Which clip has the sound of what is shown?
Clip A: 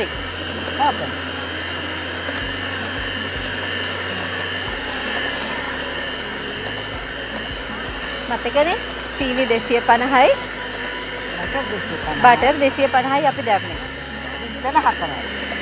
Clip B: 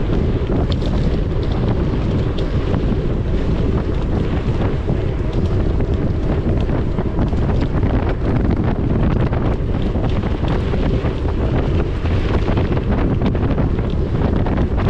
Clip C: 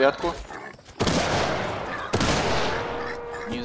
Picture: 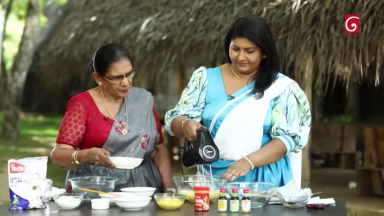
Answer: A